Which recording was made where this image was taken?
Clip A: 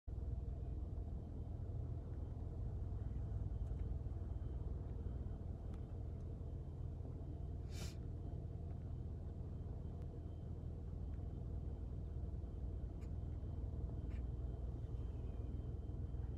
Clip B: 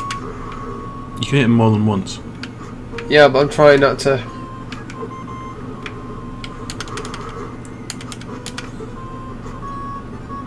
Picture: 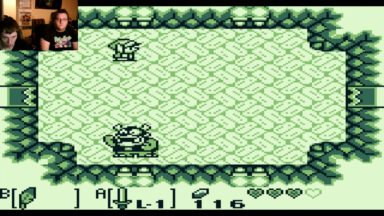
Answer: B